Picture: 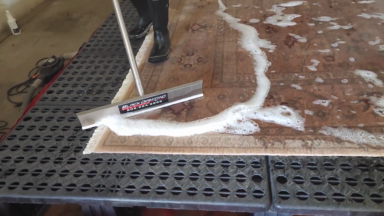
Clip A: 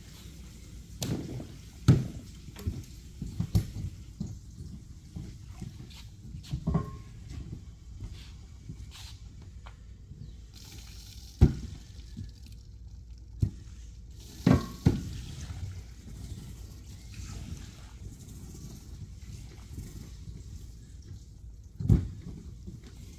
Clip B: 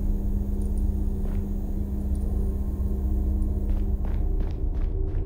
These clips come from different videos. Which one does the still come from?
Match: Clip A